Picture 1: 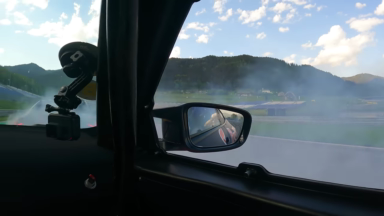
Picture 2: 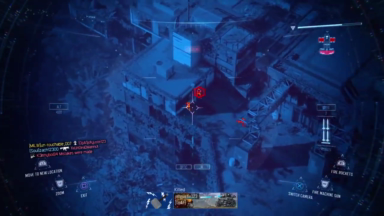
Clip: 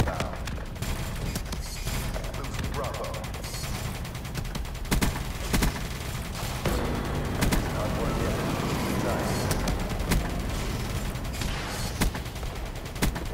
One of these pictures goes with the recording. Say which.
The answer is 2